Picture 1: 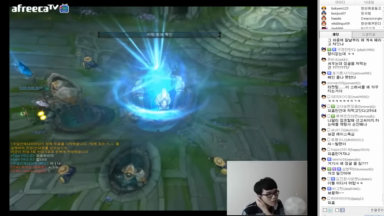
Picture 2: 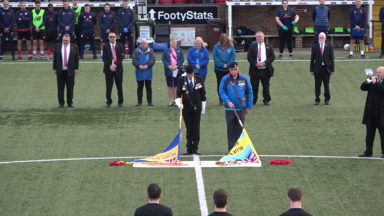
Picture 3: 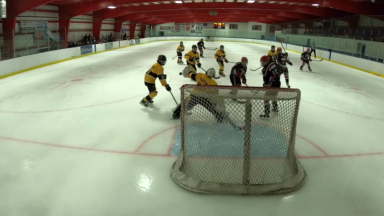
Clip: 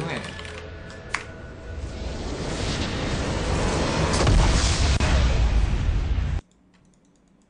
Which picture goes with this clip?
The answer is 1